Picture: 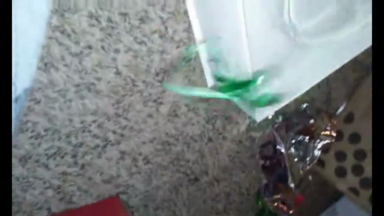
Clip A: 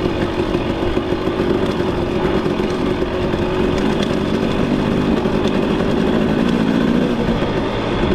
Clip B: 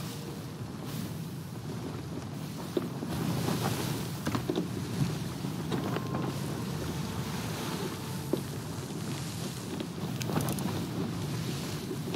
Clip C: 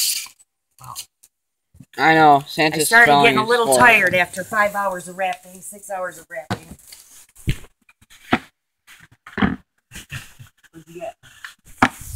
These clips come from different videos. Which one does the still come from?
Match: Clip C